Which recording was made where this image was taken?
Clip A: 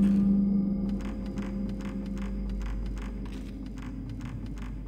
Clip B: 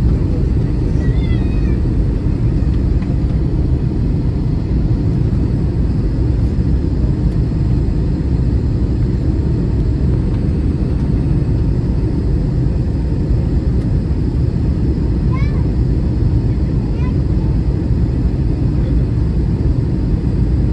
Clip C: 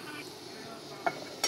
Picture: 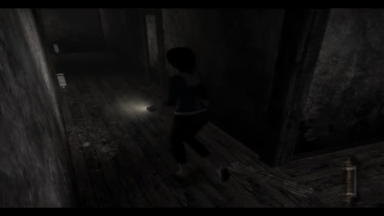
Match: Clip A